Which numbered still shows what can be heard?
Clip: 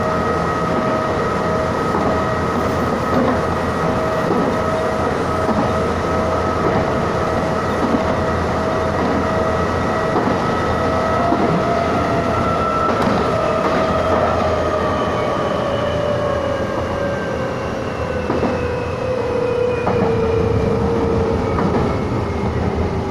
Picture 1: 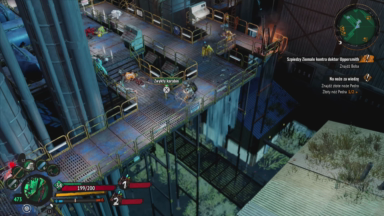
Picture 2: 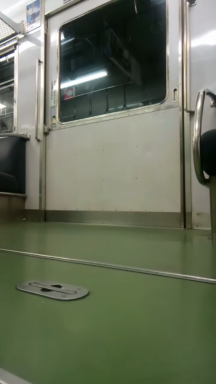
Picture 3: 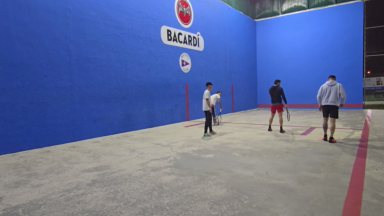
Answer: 2